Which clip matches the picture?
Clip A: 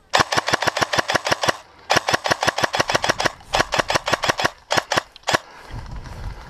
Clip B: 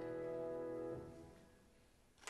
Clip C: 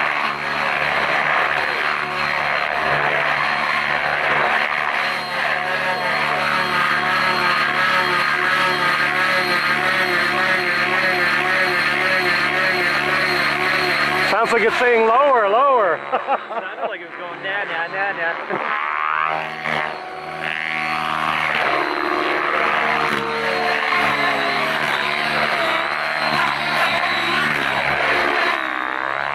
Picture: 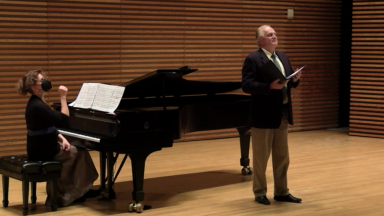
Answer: B